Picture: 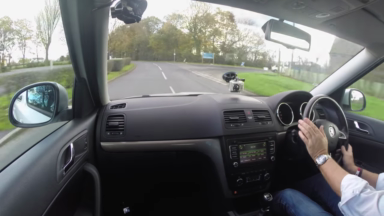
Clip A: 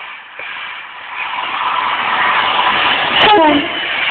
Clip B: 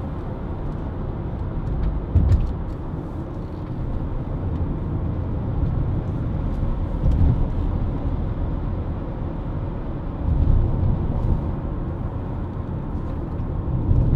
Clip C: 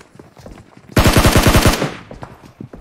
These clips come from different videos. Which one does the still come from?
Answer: B